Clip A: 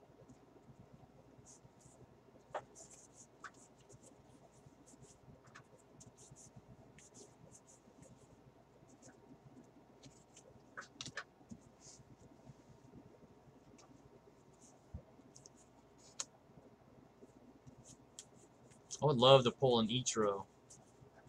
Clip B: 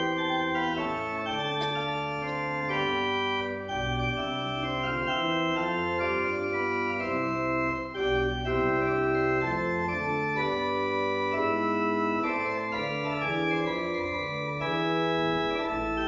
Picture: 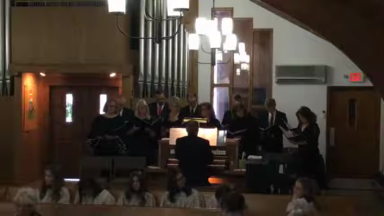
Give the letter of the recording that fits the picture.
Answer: B